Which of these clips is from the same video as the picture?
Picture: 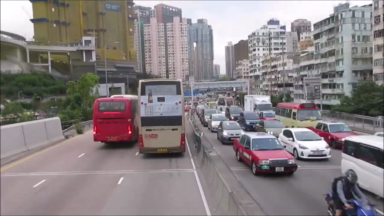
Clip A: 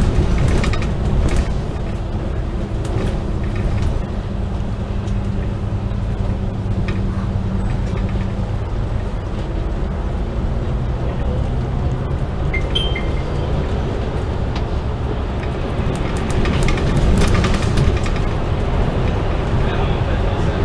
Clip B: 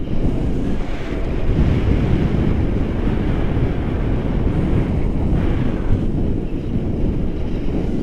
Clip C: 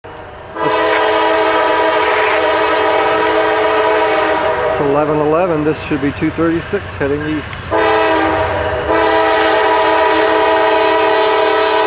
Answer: A